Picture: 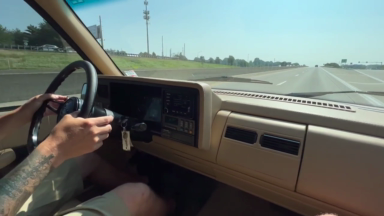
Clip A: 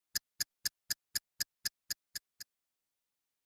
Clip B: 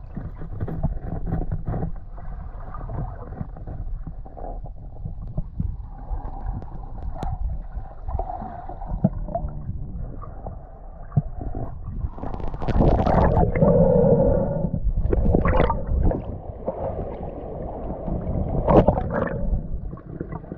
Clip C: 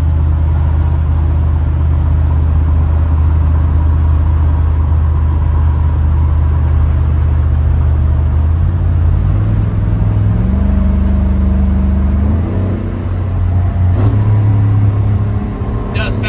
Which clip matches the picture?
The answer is C